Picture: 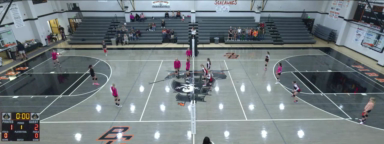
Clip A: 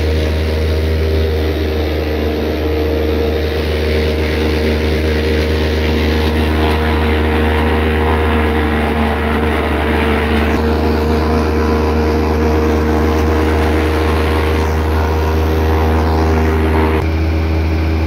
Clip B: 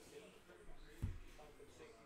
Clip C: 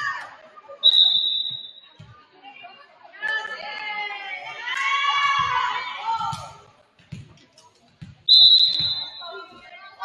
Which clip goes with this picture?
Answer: C